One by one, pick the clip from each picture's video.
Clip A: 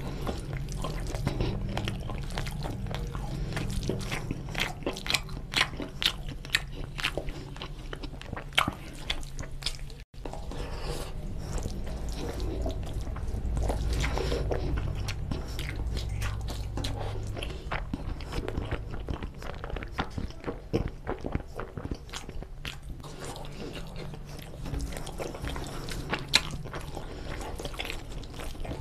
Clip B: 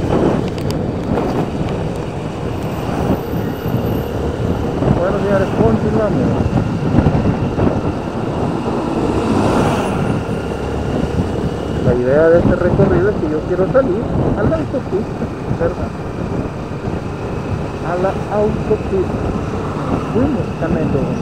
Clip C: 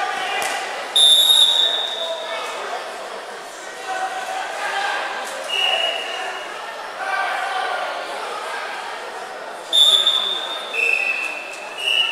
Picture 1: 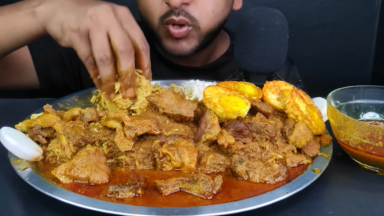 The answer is A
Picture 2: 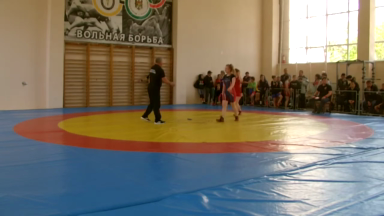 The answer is C